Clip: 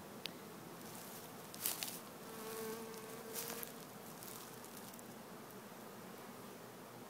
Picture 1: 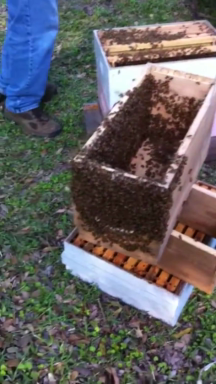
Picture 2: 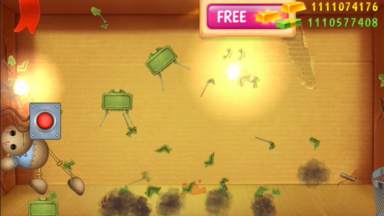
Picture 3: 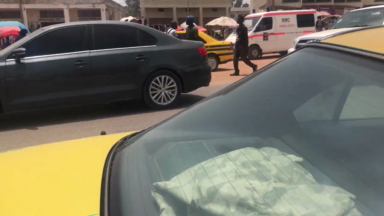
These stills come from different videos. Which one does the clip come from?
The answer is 1